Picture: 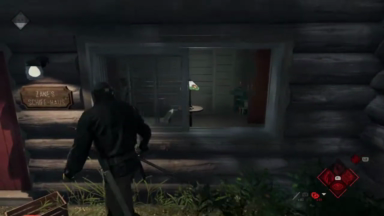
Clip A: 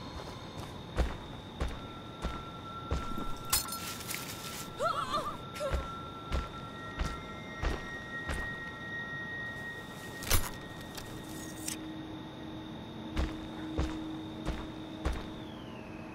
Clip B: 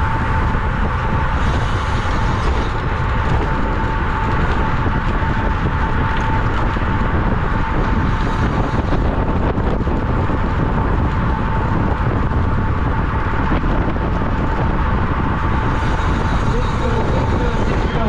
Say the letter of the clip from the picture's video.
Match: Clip A